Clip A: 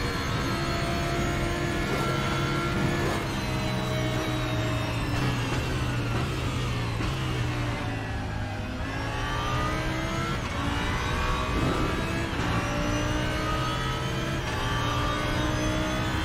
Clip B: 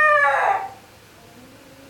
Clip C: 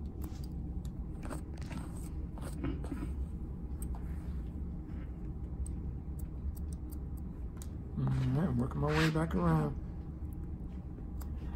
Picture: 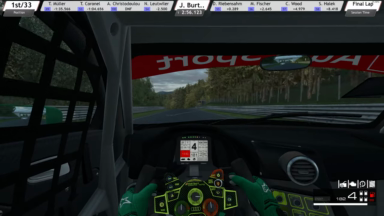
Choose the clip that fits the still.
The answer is A